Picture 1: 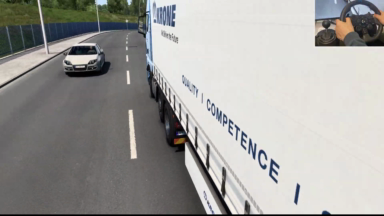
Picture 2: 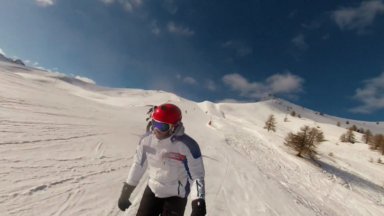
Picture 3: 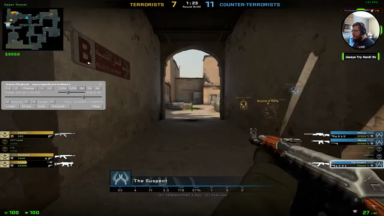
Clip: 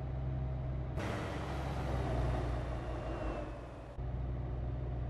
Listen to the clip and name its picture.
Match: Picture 1